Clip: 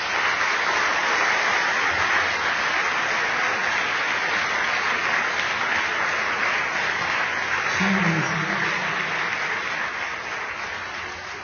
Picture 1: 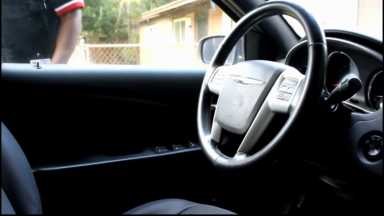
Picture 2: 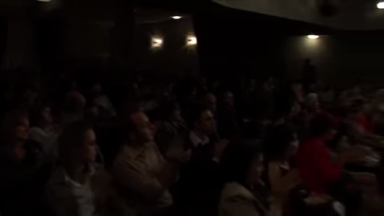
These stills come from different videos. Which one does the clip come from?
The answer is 2